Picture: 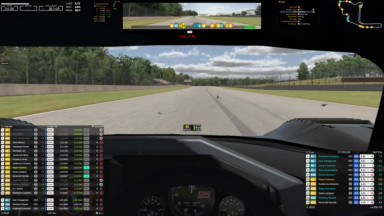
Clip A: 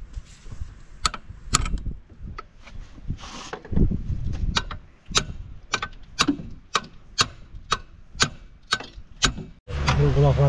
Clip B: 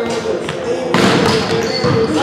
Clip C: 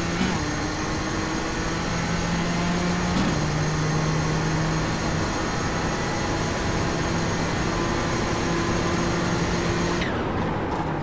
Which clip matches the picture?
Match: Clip C